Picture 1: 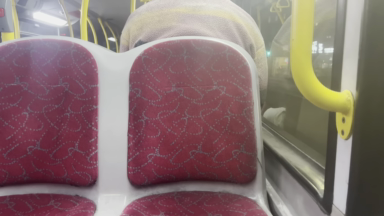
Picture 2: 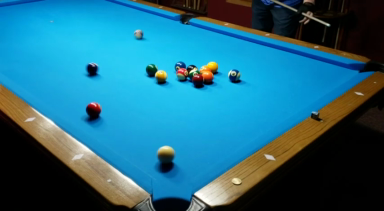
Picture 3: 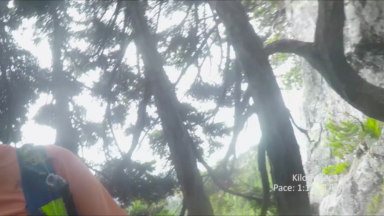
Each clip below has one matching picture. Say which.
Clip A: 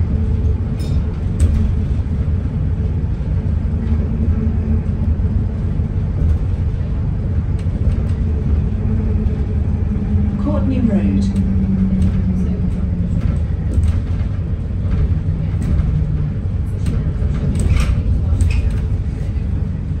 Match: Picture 1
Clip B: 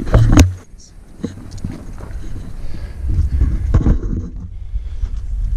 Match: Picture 3